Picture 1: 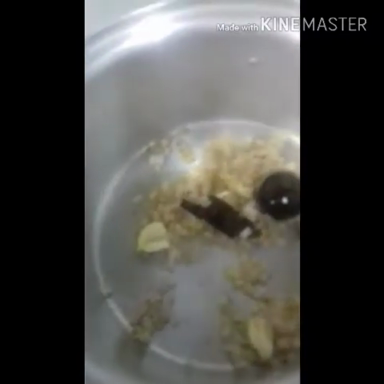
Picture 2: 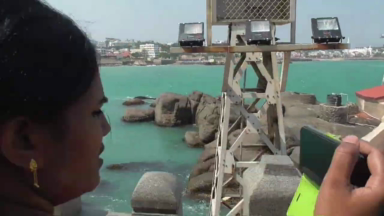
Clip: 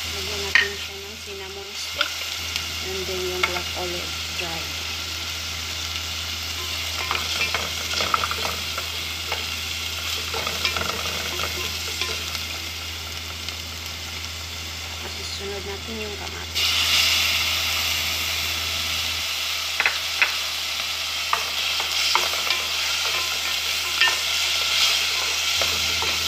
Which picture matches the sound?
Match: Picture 1